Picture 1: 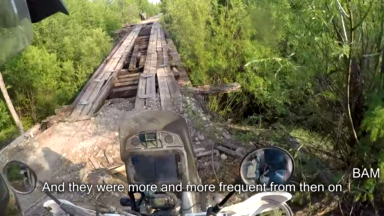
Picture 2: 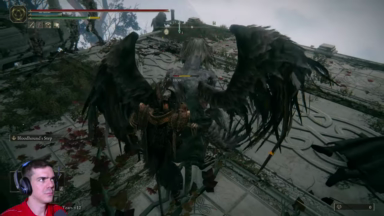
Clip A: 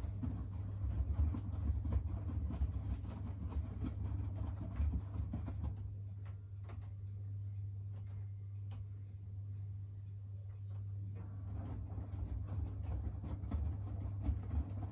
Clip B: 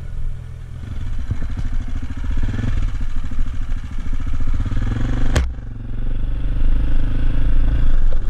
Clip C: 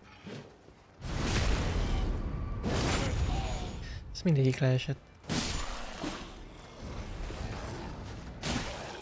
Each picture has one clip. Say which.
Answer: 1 B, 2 C